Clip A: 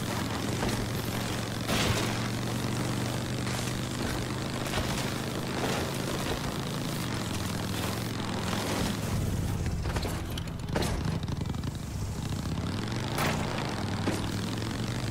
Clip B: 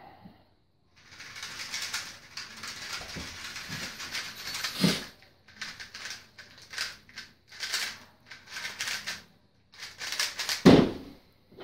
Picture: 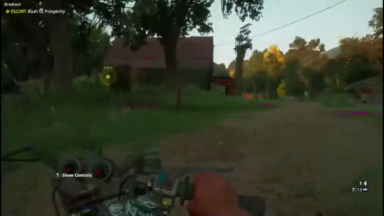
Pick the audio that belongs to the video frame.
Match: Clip A